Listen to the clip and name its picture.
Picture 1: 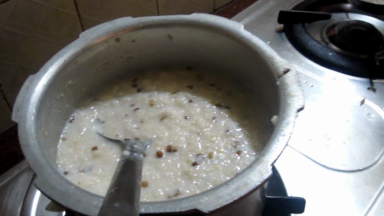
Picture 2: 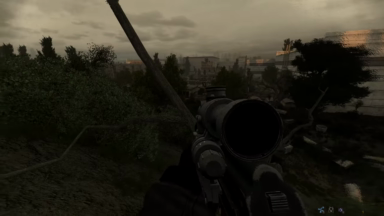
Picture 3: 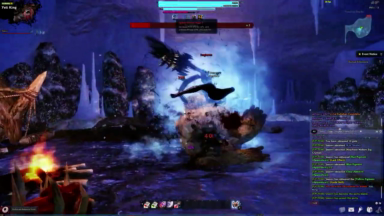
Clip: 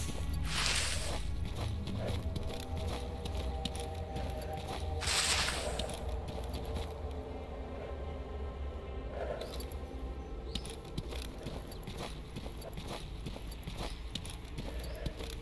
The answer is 2